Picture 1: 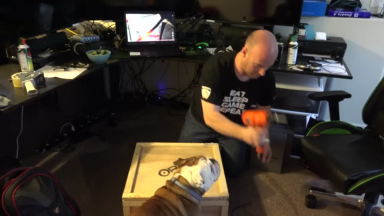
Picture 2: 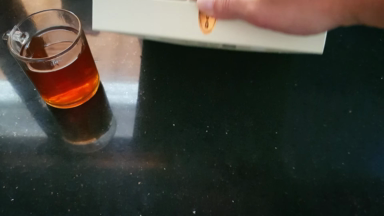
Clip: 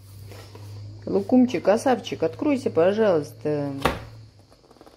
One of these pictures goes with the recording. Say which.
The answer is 2